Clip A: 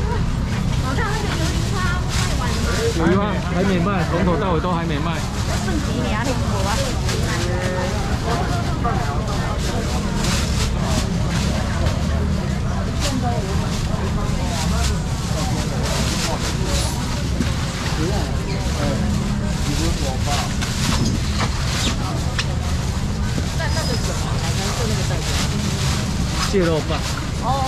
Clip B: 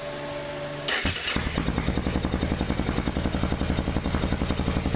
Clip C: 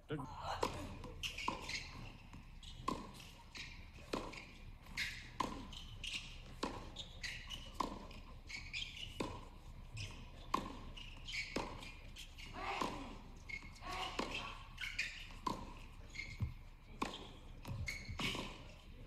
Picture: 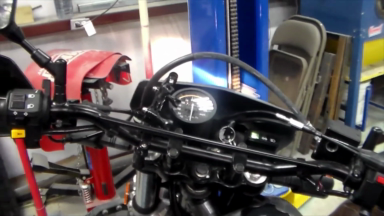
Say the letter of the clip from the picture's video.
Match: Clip B